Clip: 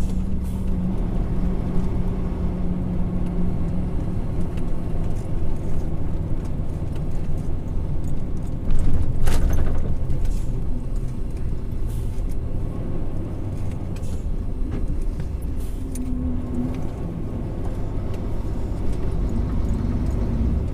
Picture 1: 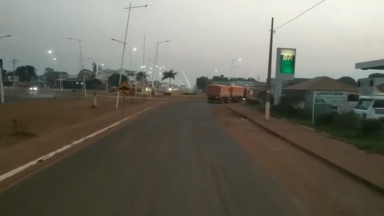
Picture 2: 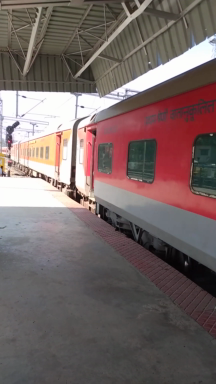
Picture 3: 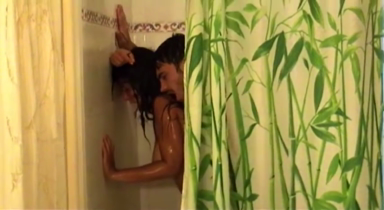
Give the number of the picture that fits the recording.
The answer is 1